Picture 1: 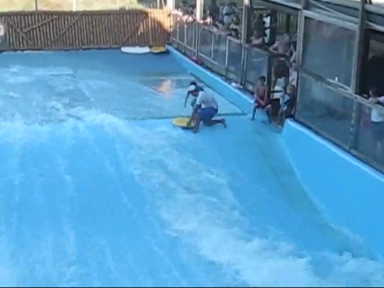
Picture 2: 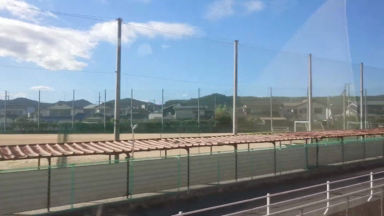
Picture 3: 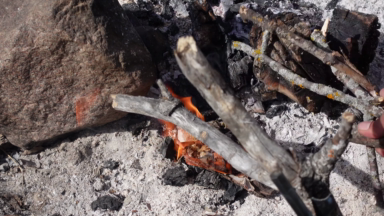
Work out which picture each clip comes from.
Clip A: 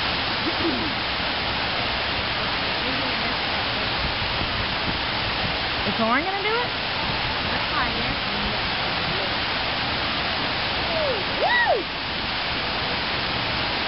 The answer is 1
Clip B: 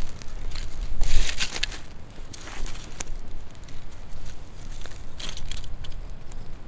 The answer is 3